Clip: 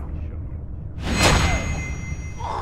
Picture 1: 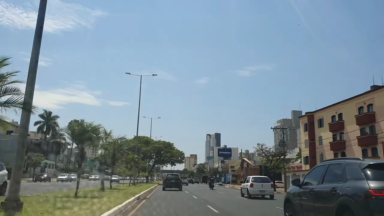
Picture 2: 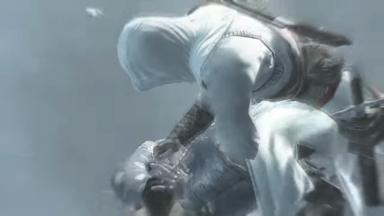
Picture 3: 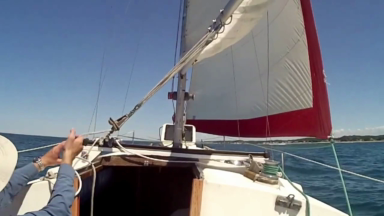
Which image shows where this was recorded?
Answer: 2